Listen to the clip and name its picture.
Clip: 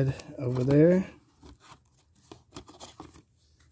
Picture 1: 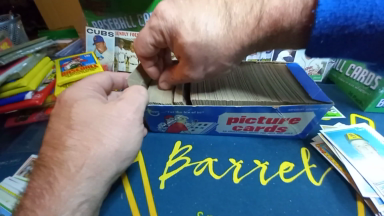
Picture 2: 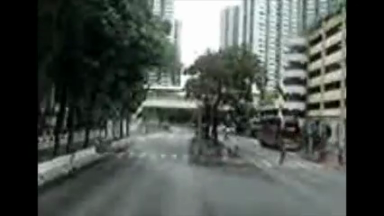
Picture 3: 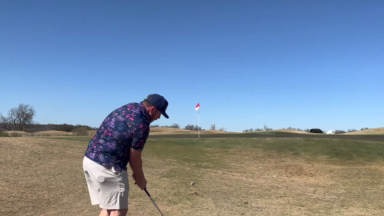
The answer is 1